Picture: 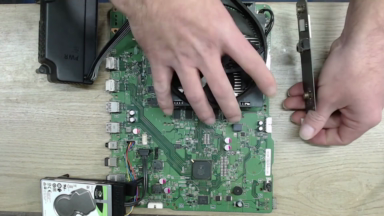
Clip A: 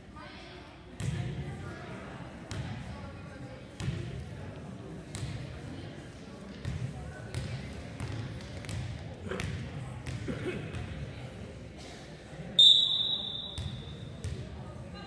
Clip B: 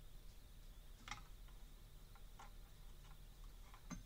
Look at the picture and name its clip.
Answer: B